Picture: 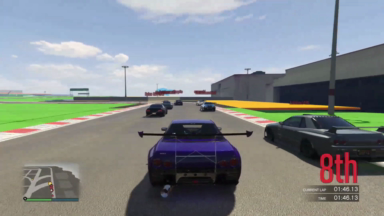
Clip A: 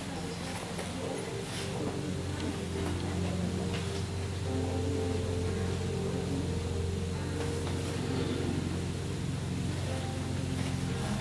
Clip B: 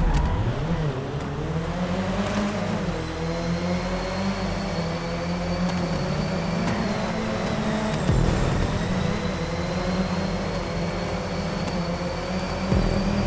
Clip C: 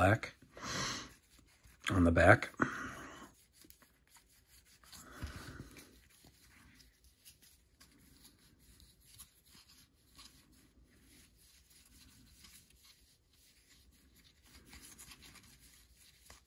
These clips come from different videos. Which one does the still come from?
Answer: B